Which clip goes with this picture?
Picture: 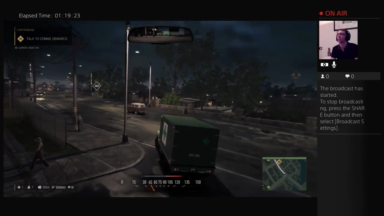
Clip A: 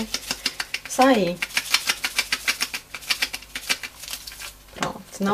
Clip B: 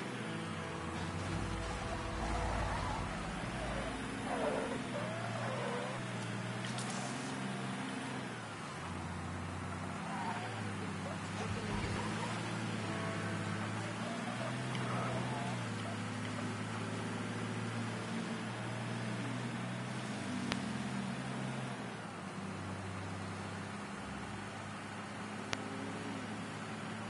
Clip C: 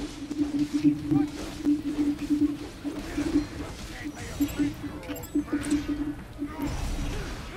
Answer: B